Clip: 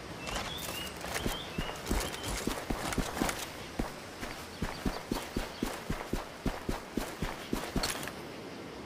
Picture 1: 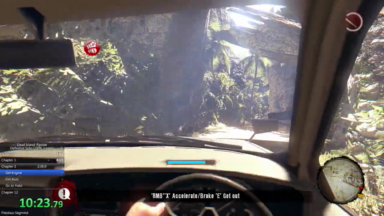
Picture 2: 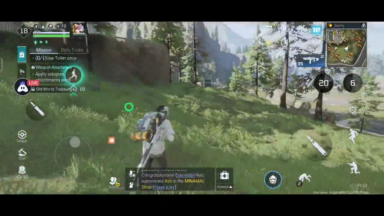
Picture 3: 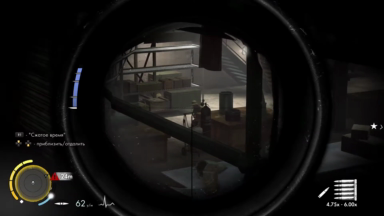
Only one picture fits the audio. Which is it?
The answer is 2